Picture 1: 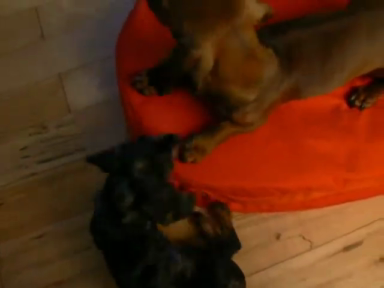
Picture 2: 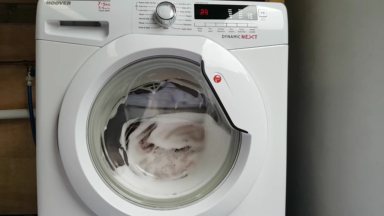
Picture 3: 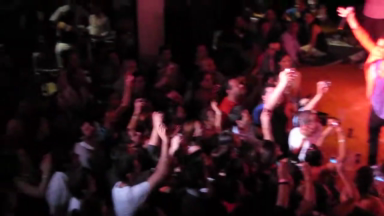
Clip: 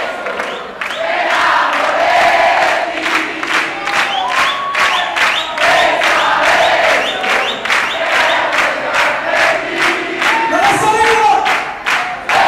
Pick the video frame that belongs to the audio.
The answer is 3